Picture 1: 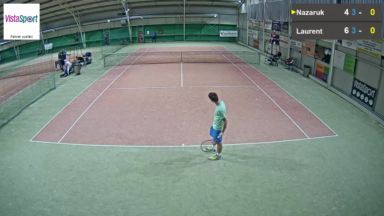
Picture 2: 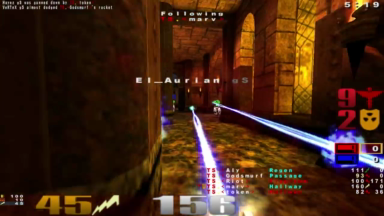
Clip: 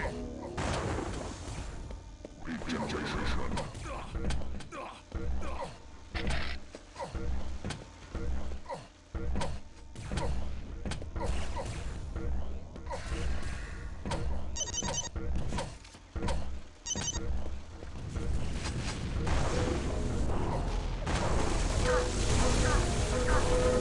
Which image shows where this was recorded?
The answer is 2